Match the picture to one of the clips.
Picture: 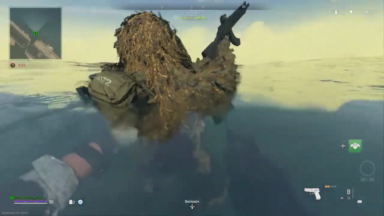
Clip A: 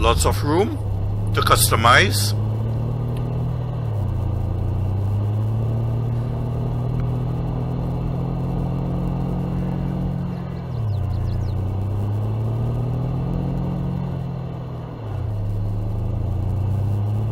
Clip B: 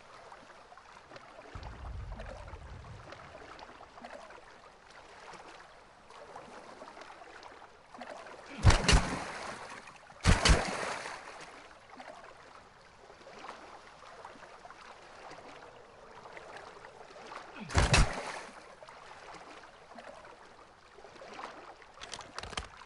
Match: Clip B